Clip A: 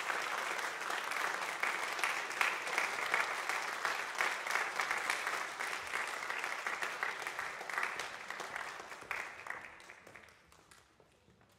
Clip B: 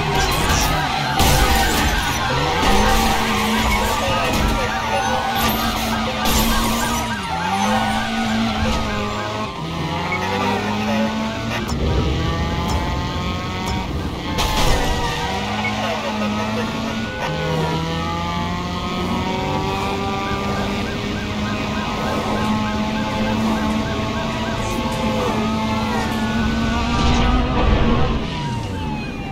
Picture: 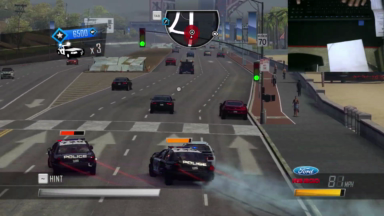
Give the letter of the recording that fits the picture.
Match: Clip B